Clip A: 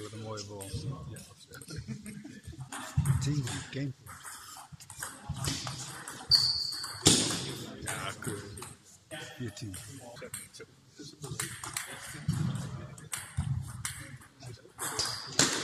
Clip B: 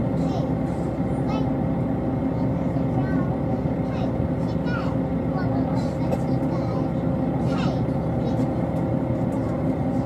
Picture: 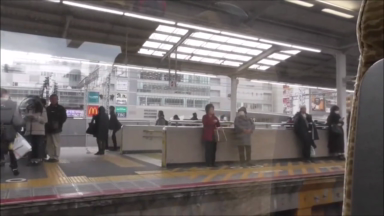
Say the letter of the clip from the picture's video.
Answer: B